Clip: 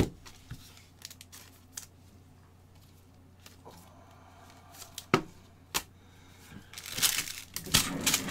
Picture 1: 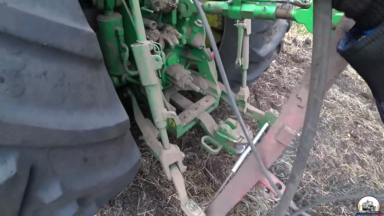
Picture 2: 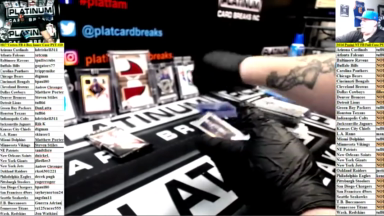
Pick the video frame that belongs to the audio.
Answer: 2